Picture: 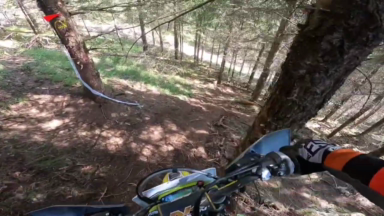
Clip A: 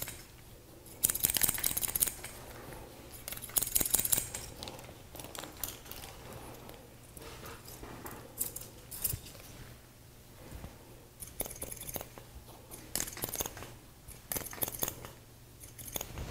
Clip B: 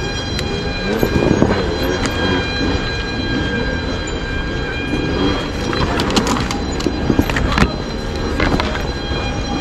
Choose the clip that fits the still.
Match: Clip B